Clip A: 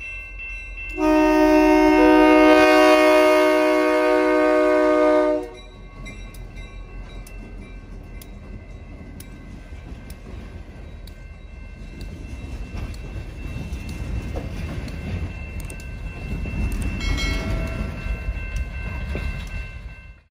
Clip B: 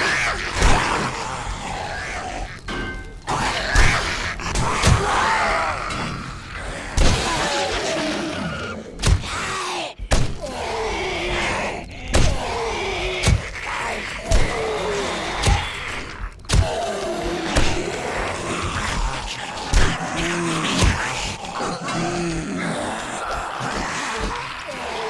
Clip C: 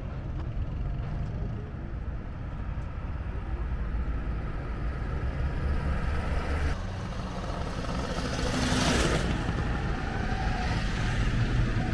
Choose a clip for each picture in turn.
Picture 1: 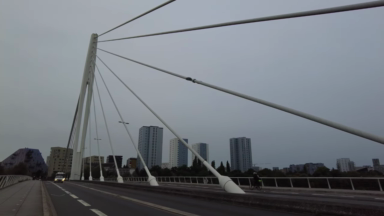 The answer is C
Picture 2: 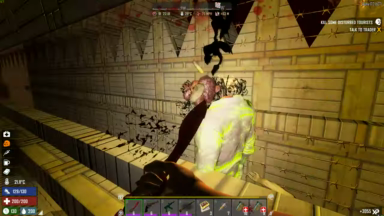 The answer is B